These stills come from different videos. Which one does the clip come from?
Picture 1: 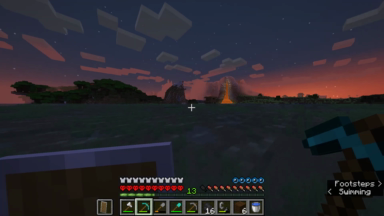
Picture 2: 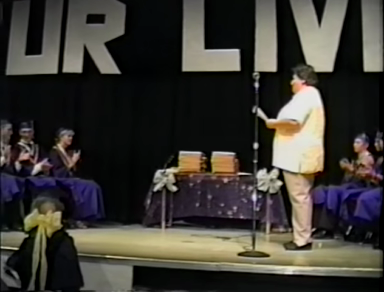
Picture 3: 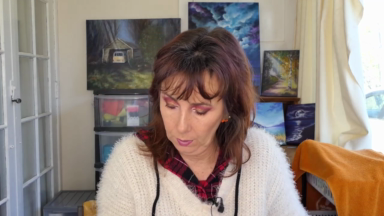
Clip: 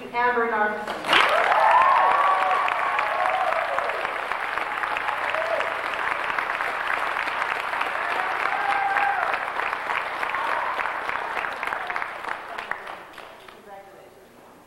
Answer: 2